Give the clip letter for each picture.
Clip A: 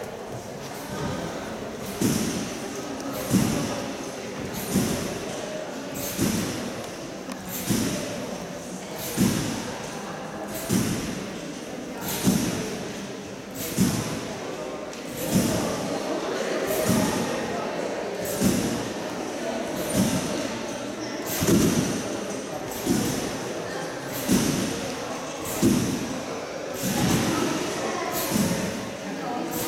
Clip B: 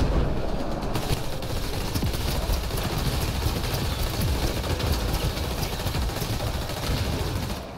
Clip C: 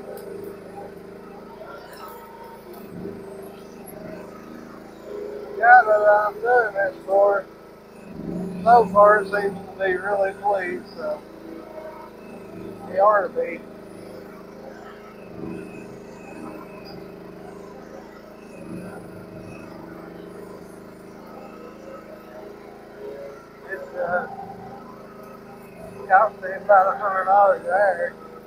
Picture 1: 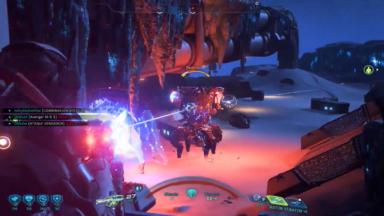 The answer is B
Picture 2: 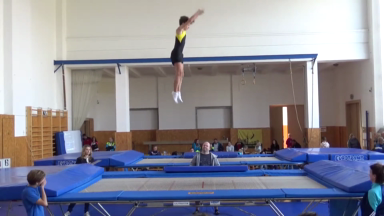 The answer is A